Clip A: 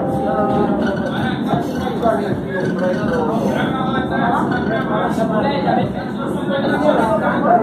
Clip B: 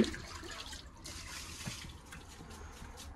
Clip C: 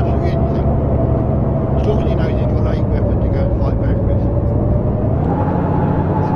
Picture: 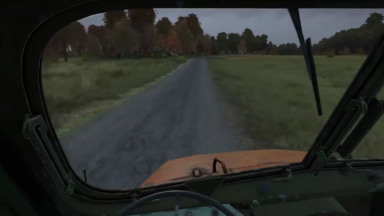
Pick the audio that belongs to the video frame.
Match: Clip C